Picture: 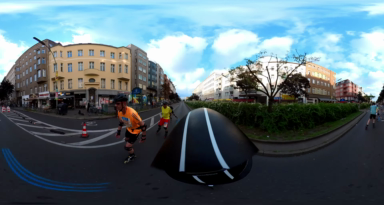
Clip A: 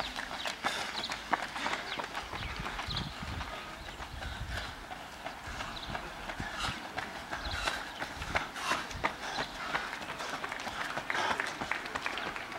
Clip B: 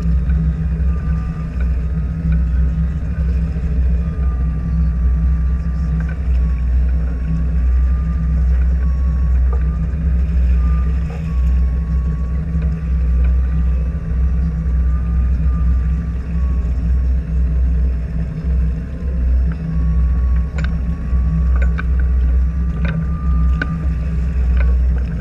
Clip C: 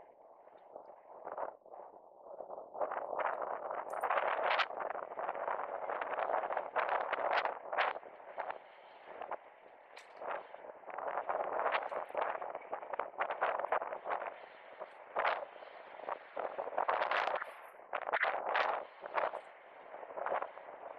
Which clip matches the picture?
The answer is C